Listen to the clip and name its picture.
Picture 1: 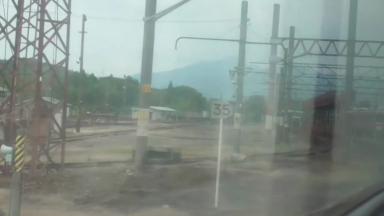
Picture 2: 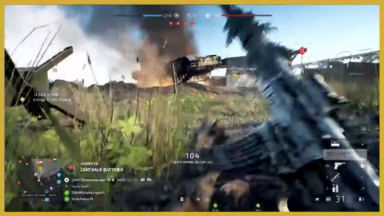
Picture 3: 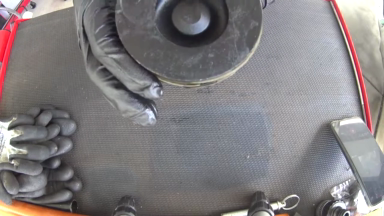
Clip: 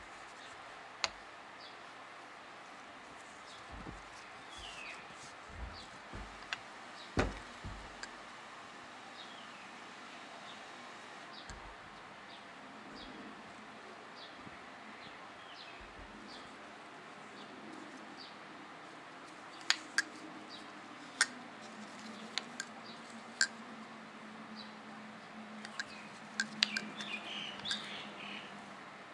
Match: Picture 3